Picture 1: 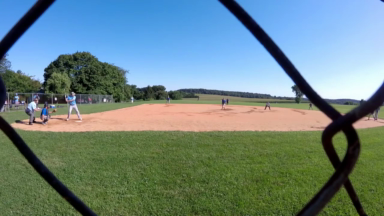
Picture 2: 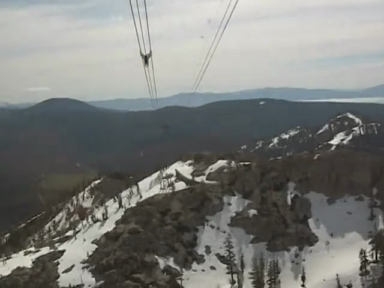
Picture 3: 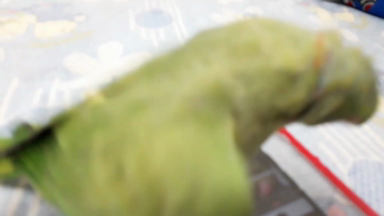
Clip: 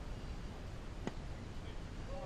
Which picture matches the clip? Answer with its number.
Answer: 1